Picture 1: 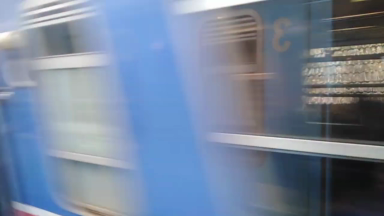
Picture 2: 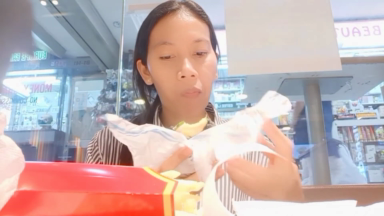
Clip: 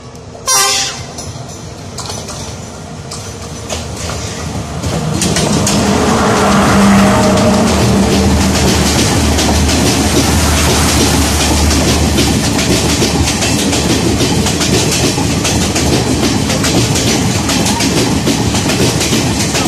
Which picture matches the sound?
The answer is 1